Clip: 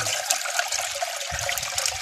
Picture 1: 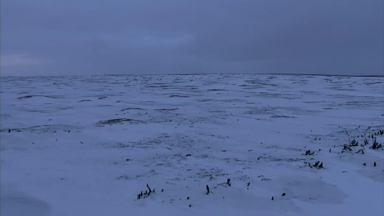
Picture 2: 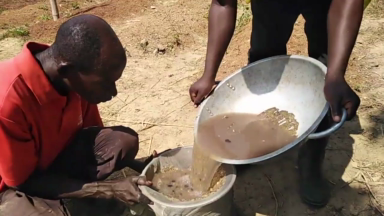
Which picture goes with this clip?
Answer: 2